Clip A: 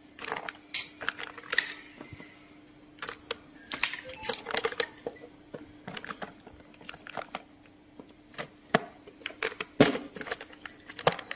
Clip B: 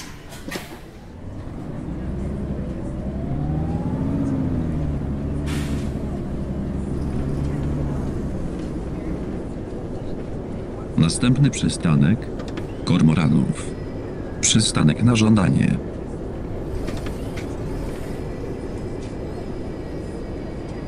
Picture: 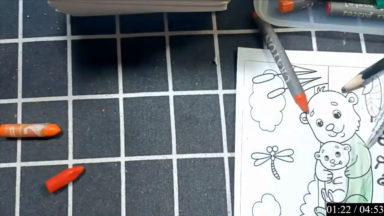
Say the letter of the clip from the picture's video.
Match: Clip A